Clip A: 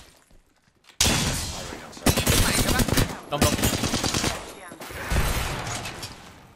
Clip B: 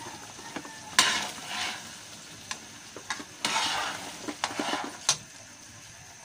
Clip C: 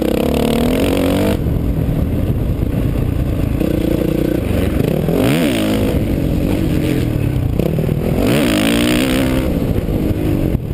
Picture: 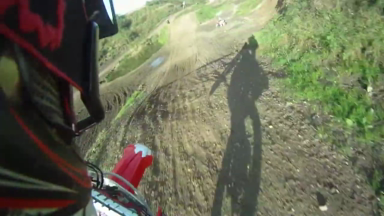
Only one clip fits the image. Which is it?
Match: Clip C